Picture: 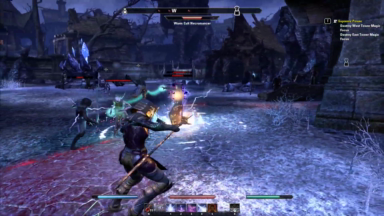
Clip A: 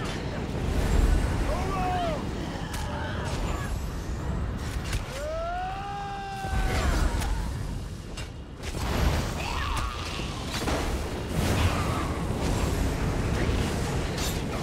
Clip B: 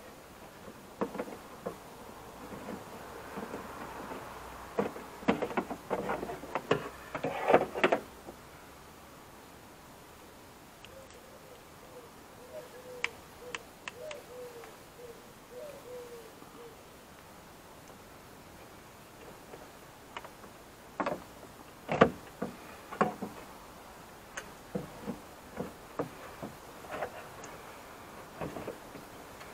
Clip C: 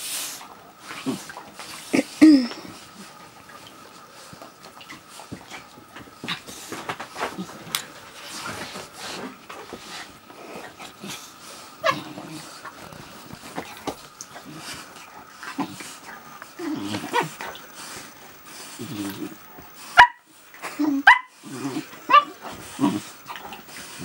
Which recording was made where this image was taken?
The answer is A